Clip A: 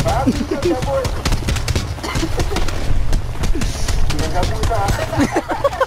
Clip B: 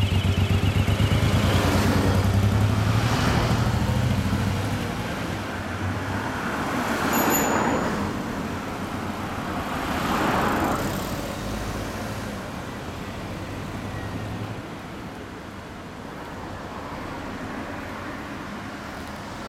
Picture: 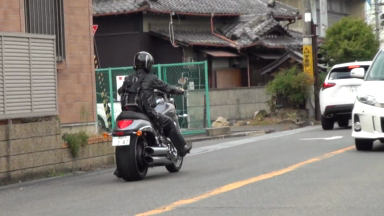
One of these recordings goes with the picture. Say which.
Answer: B